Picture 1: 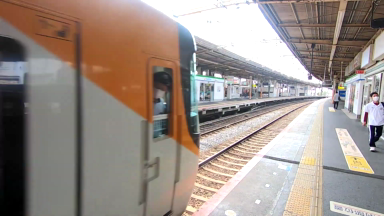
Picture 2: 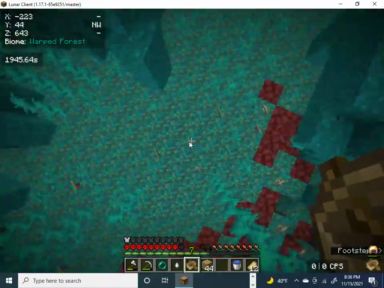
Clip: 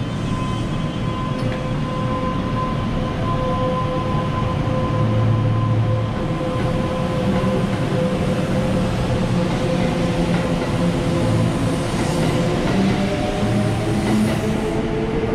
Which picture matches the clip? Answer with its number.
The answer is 1